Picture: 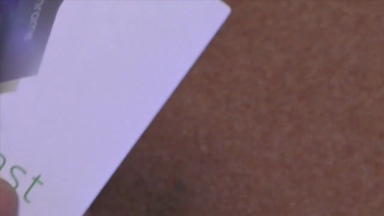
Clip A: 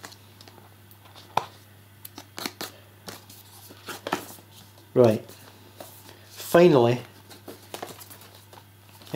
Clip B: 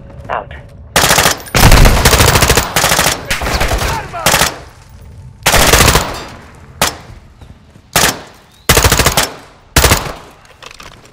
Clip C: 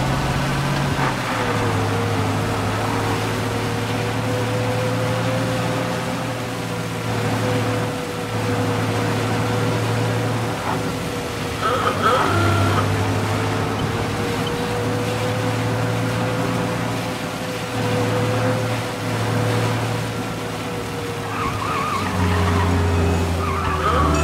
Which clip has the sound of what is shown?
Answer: A